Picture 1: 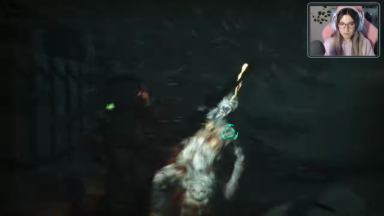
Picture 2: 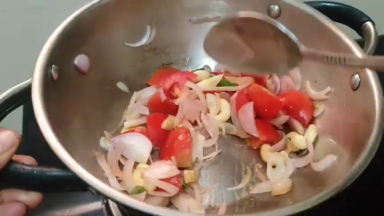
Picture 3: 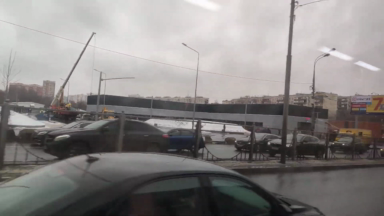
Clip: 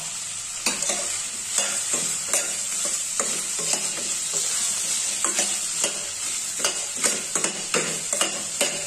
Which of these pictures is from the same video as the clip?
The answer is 2